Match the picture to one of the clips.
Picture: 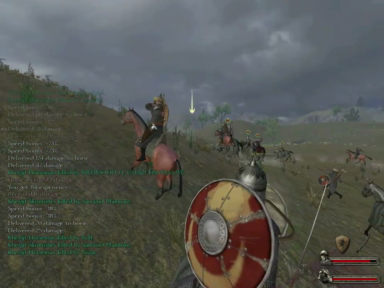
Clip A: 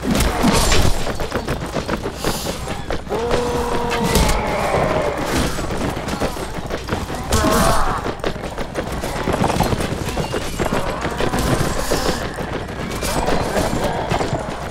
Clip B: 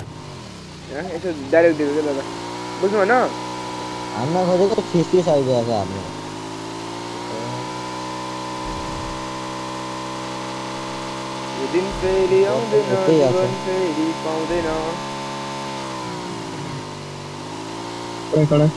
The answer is A